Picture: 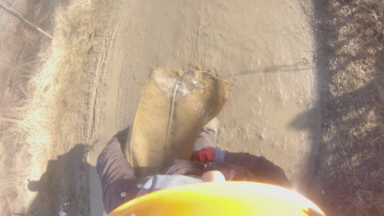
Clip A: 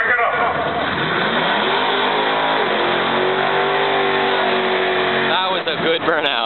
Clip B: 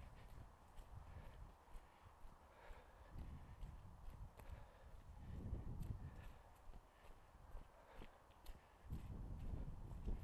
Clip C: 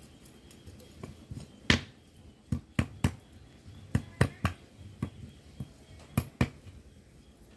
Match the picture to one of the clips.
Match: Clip B